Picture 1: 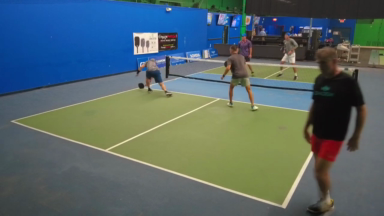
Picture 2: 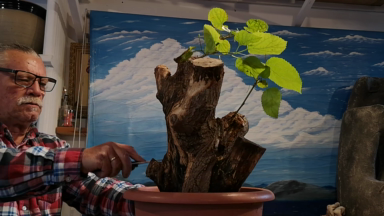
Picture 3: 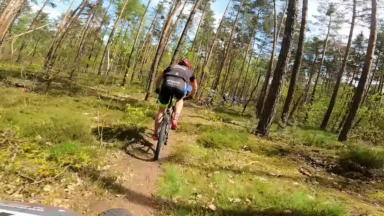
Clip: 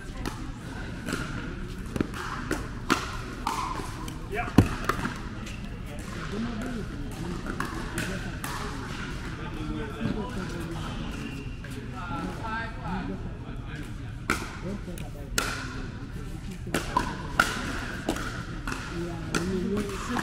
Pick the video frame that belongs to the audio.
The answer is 1